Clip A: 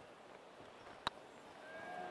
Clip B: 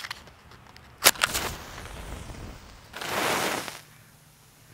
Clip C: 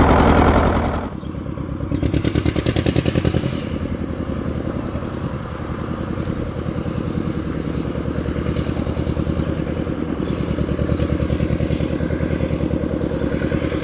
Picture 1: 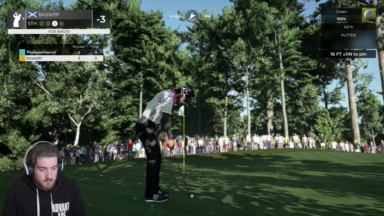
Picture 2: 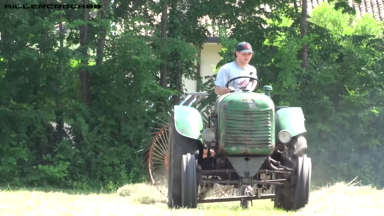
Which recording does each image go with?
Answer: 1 A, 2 C